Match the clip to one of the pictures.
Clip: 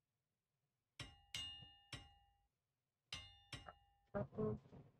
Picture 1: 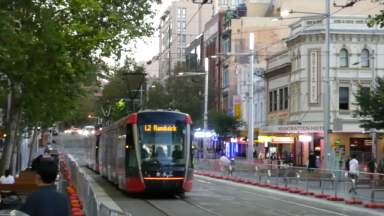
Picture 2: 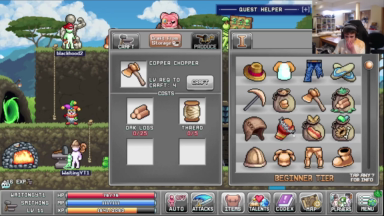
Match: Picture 2